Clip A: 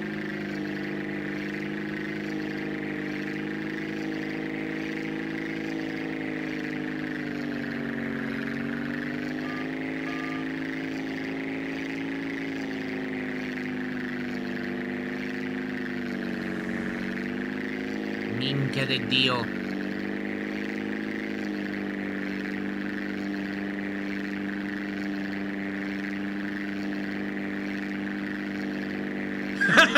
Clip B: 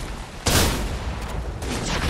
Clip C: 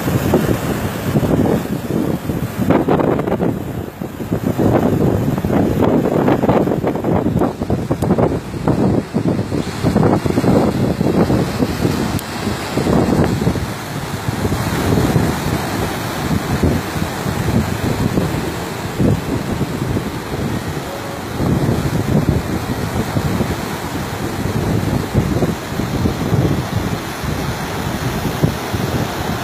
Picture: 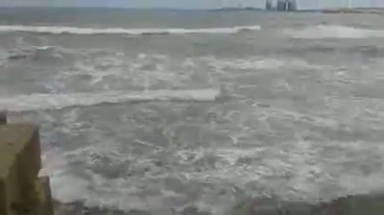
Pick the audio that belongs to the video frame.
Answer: C